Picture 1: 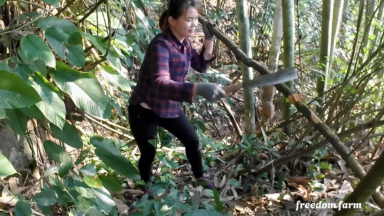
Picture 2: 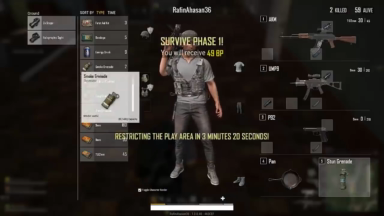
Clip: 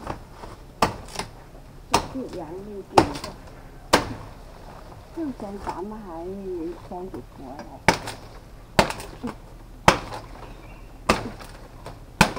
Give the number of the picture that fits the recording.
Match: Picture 1